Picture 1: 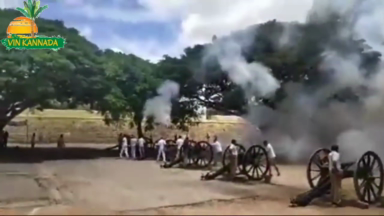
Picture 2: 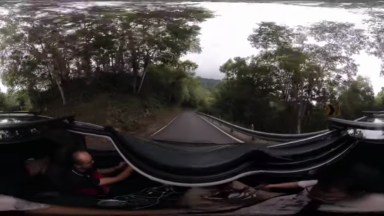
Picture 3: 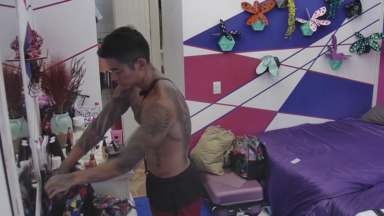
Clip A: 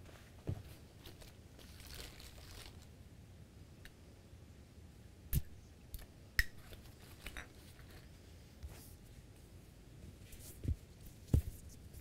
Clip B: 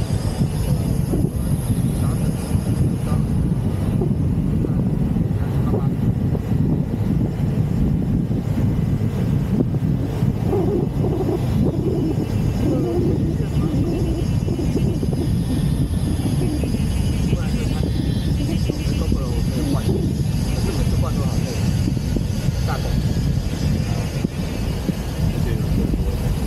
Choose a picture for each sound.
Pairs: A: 3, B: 2